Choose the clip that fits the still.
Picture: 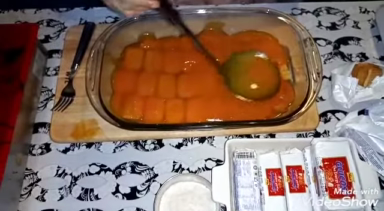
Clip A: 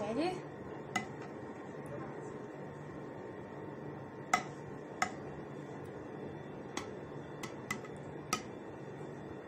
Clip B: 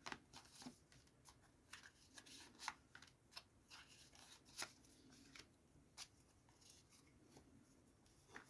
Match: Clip A